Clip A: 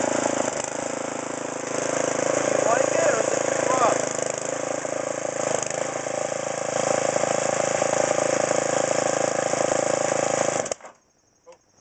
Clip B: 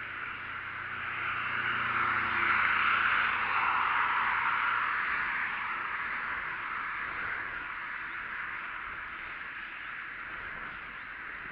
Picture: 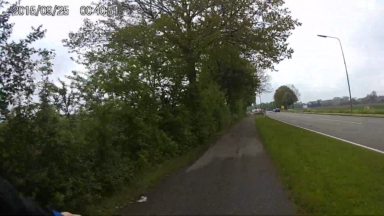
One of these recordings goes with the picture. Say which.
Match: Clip B